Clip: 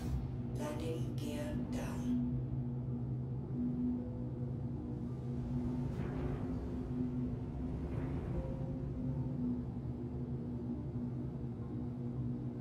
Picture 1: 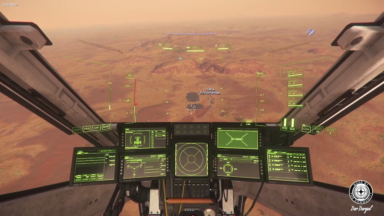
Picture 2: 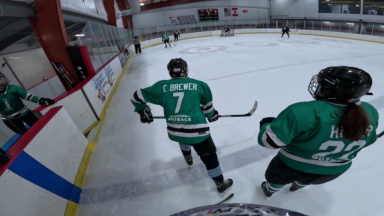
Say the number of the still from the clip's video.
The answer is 1